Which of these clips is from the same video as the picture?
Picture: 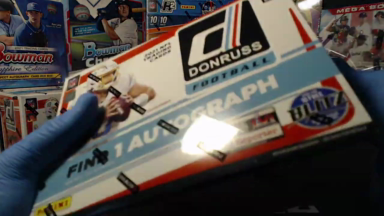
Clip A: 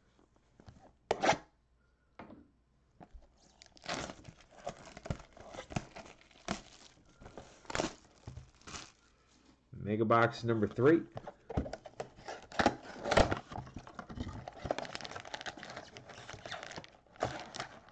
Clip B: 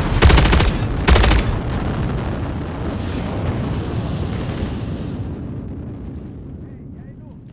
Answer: A